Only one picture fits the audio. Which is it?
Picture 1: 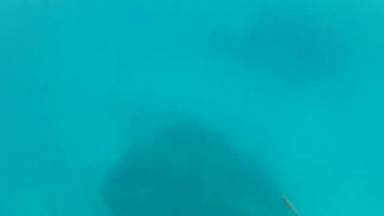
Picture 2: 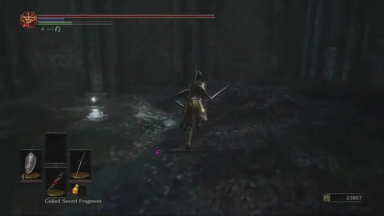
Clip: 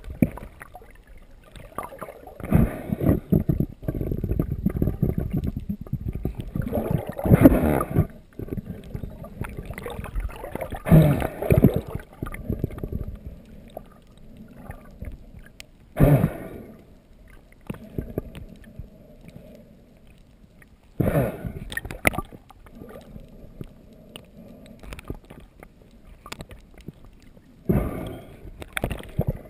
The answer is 1